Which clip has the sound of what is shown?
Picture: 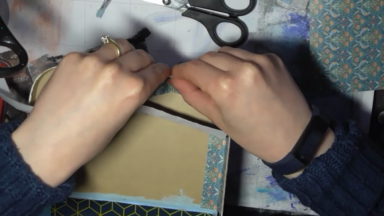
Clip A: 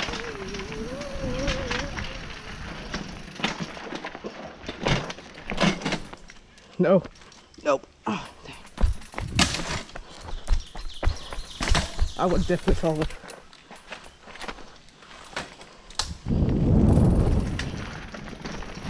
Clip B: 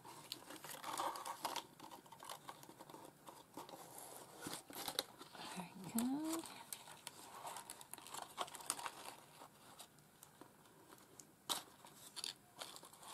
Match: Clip B